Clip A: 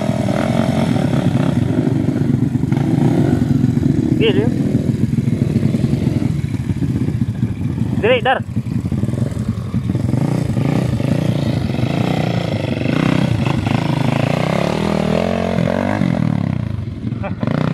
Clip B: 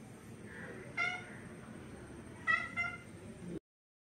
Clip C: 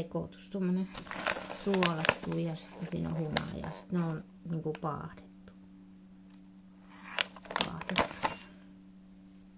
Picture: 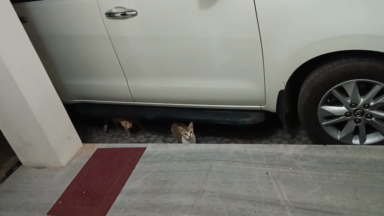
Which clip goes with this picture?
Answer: B